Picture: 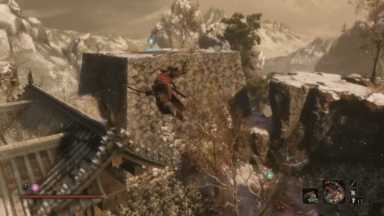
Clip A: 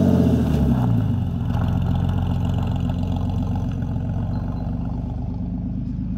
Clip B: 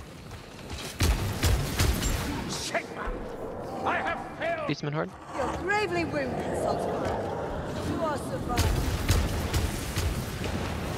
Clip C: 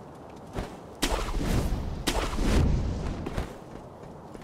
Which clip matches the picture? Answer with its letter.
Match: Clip C